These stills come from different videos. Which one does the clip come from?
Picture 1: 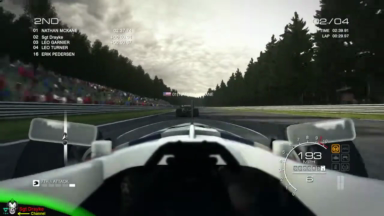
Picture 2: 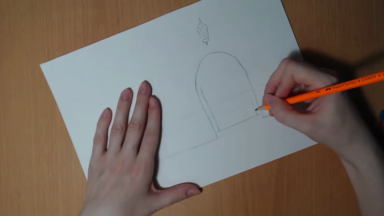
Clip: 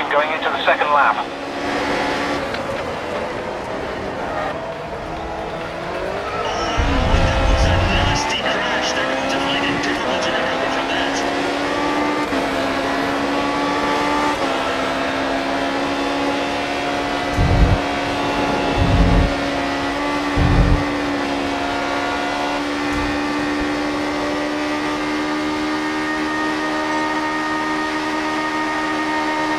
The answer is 1